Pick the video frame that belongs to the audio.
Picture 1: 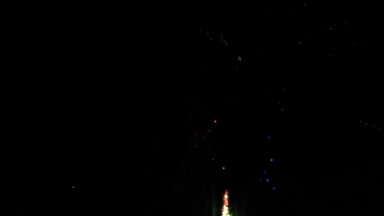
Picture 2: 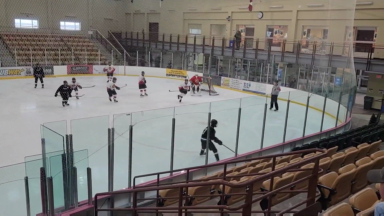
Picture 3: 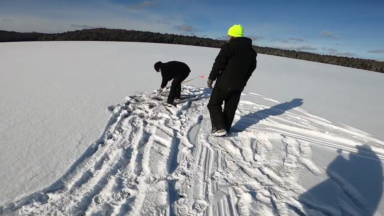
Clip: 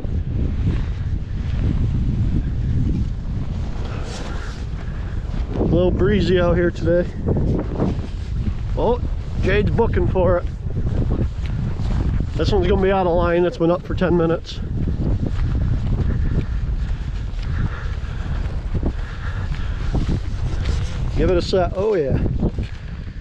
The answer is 3